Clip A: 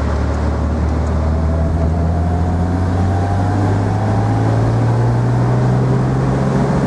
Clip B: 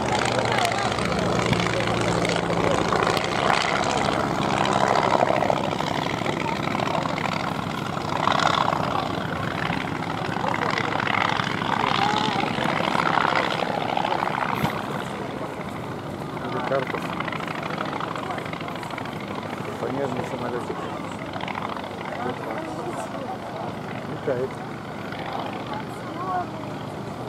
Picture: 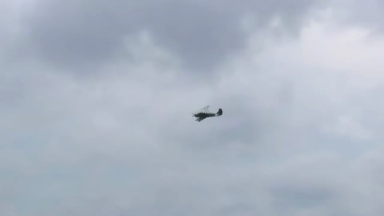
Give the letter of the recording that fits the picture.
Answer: B